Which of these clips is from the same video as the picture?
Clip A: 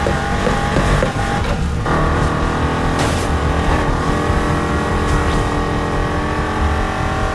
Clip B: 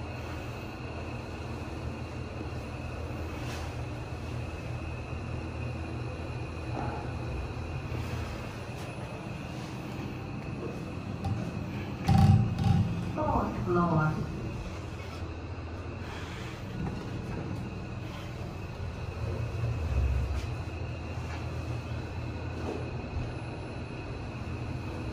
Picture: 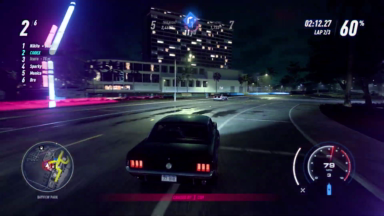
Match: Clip A